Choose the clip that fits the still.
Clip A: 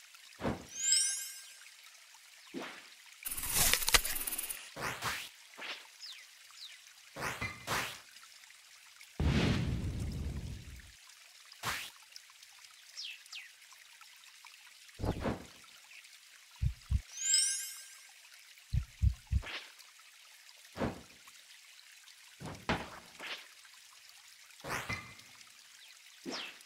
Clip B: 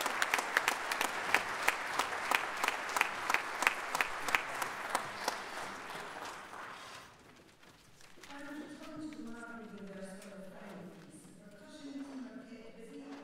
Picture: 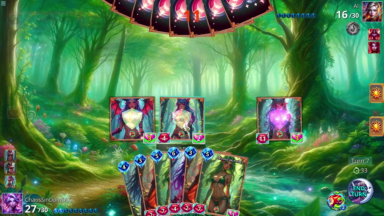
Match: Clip A